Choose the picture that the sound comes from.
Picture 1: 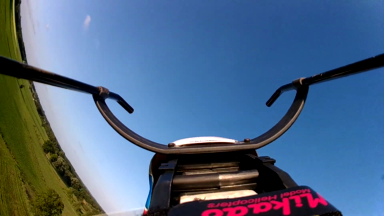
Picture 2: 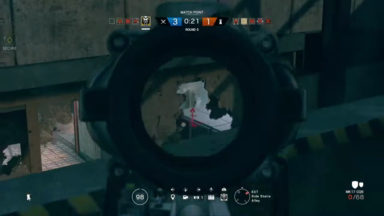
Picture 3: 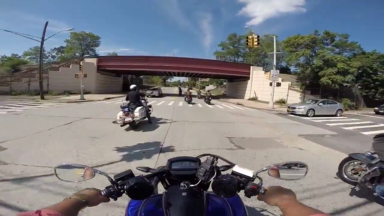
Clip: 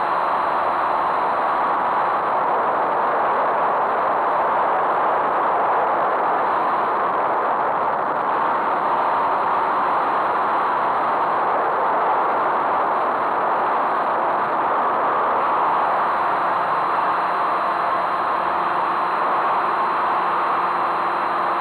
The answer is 1